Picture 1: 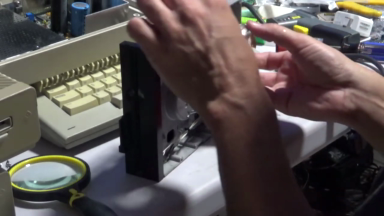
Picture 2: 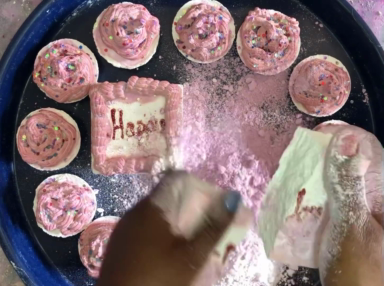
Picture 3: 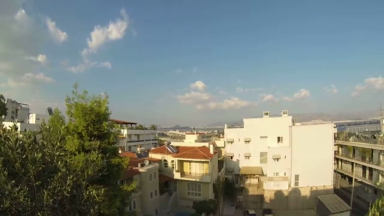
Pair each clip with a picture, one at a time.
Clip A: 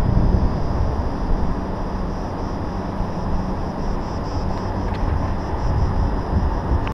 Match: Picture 3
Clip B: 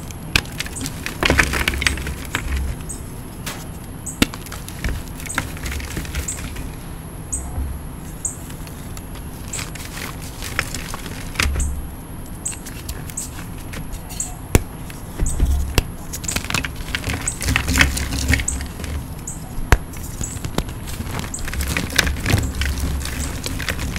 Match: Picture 2